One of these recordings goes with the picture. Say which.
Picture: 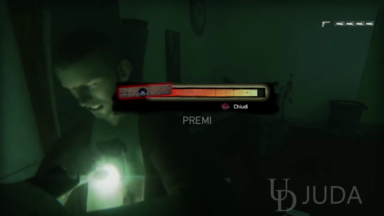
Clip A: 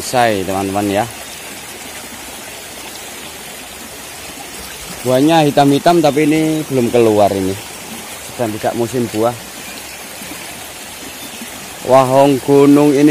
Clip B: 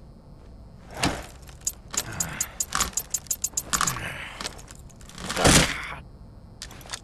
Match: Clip B